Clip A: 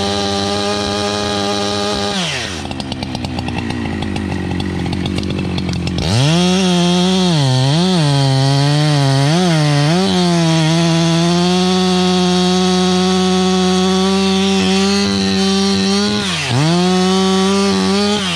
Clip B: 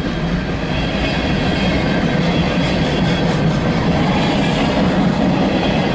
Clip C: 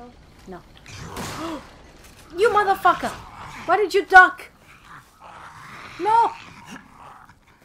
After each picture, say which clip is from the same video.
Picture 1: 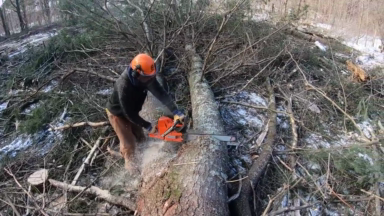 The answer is A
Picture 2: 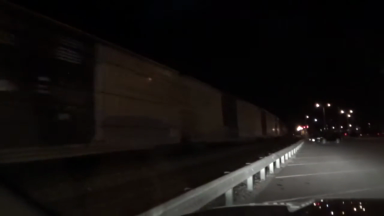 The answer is B